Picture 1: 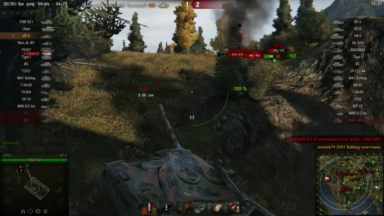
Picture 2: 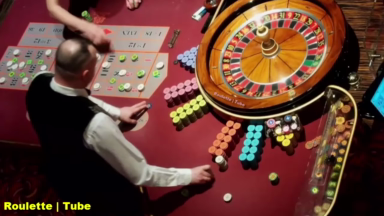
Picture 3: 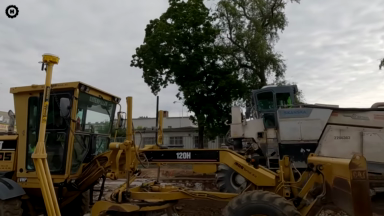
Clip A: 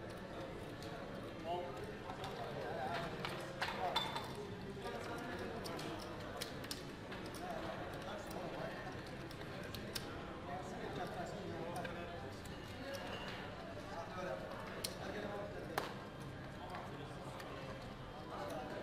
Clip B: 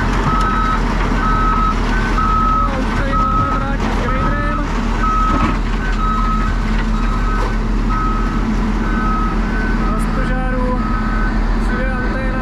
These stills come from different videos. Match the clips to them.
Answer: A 2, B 3